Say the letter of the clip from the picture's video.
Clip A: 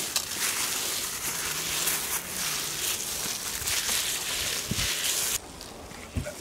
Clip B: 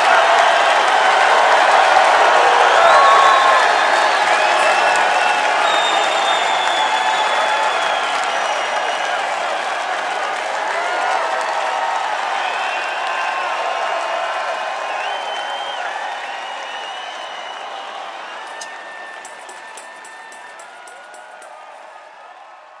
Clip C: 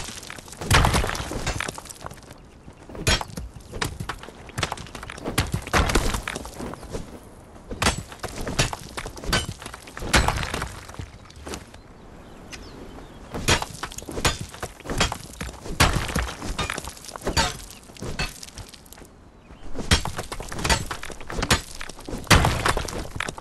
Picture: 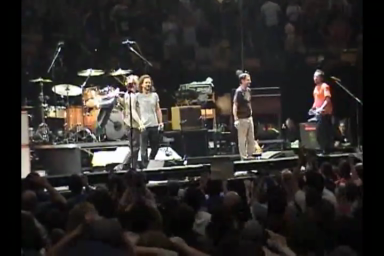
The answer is B